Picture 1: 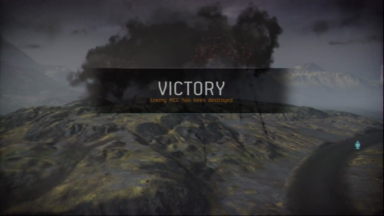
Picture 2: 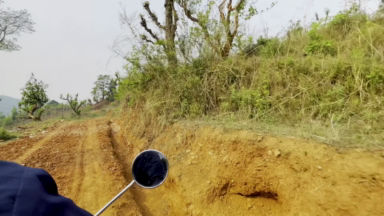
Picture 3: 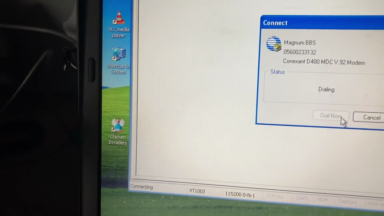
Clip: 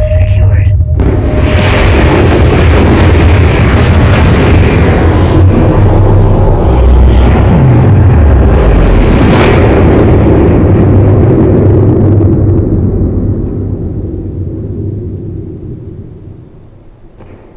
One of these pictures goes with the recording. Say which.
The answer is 1